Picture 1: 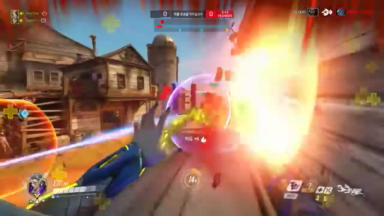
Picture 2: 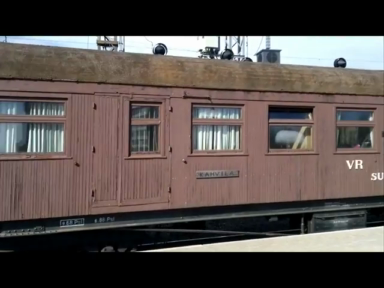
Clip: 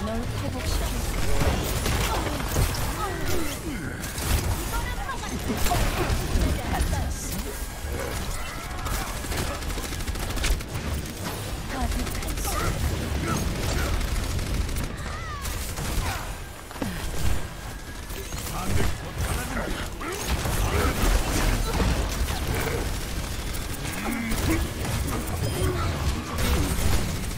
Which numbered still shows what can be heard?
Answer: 1